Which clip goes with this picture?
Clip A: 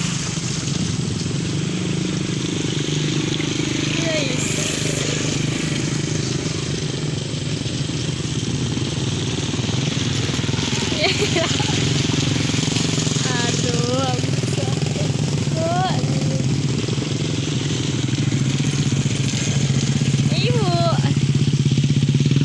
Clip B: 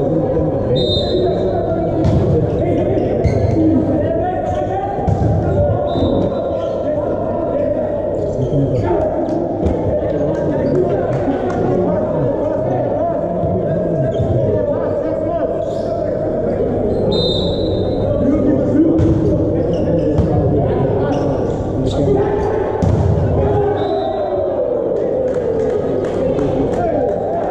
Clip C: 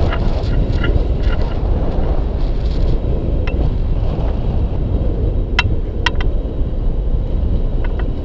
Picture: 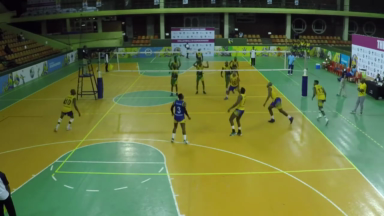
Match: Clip B